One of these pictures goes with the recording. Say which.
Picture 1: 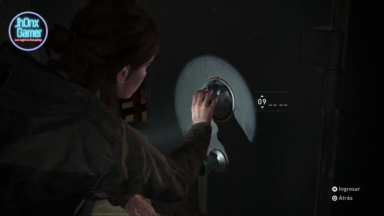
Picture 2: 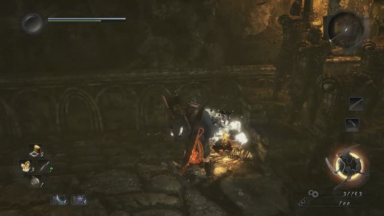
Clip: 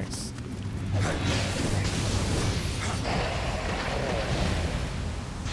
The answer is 2